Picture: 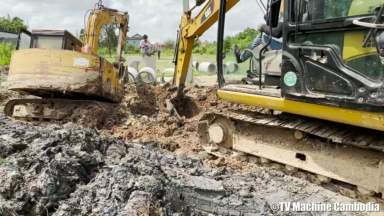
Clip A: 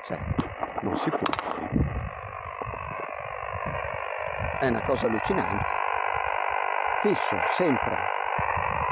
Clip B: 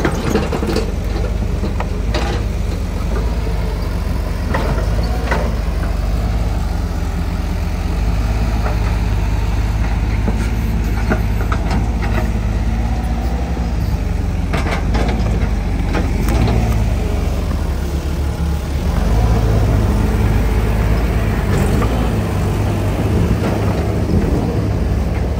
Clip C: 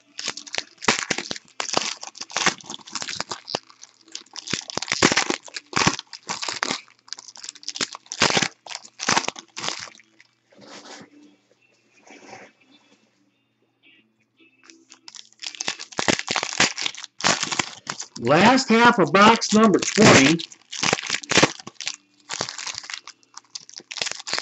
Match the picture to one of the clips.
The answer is B